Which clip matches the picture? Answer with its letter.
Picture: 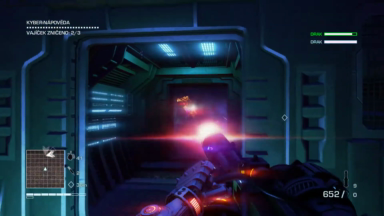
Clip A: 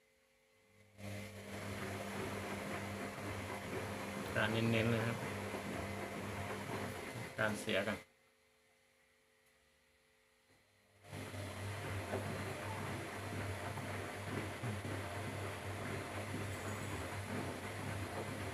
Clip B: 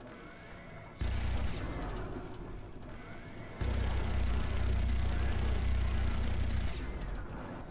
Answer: B